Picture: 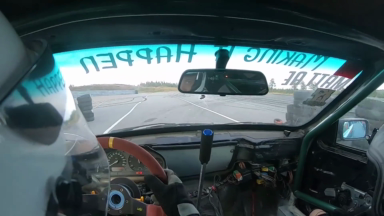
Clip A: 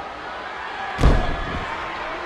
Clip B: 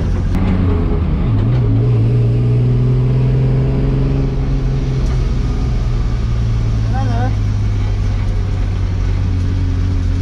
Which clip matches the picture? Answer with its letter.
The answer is B